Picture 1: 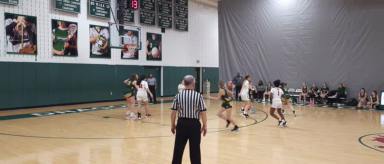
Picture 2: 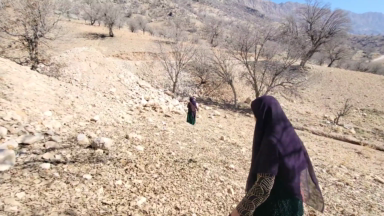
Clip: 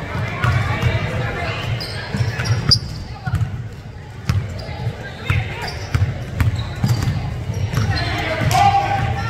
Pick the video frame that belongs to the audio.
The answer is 1